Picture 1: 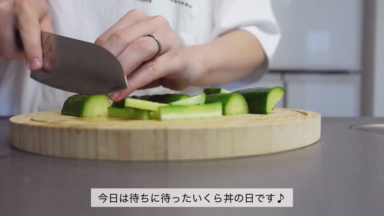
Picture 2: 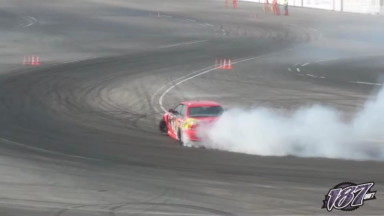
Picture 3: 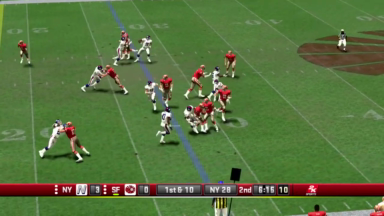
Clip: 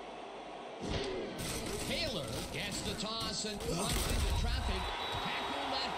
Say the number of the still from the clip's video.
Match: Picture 3